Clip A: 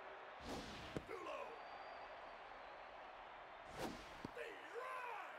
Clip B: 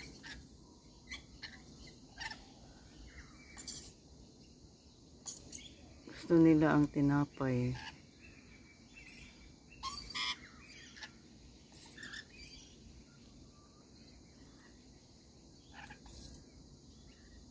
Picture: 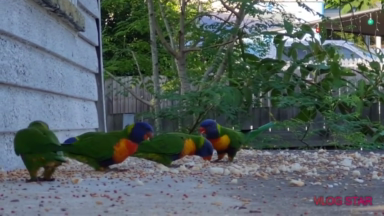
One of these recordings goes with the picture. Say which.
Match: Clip B